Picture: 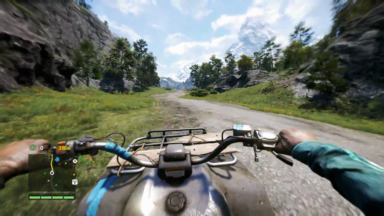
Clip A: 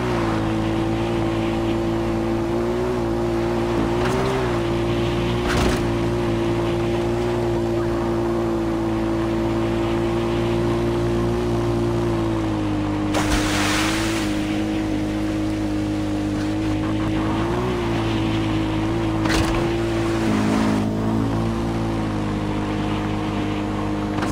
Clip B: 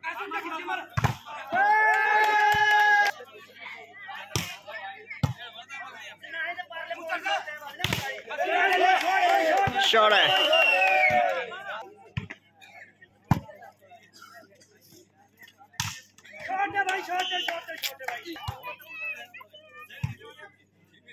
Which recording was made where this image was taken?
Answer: A